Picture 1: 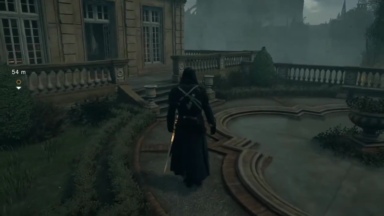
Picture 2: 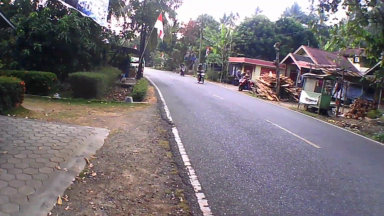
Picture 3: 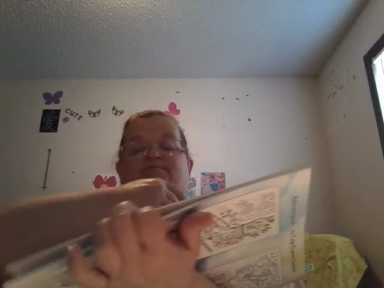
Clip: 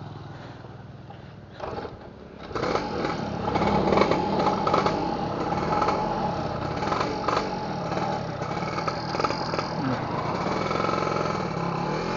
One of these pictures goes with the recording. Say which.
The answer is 2